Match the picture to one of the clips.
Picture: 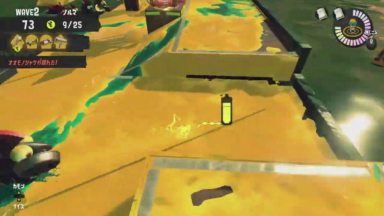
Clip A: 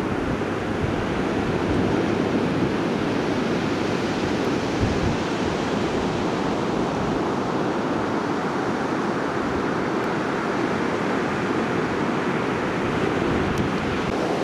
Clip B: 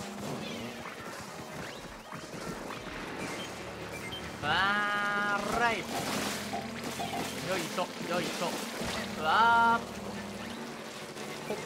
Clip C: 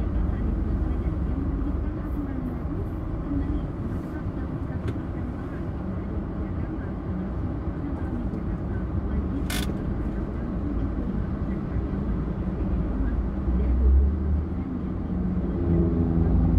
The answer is B